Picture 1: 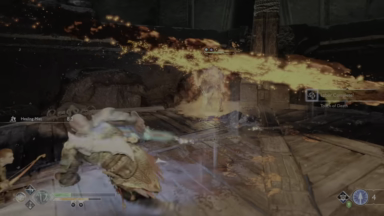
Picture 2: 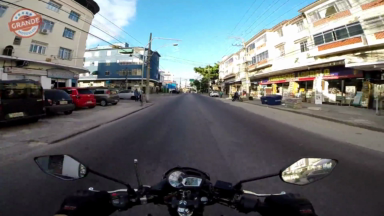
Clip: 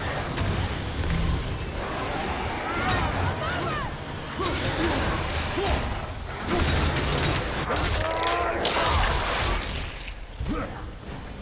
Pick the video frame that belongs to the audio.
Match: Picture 1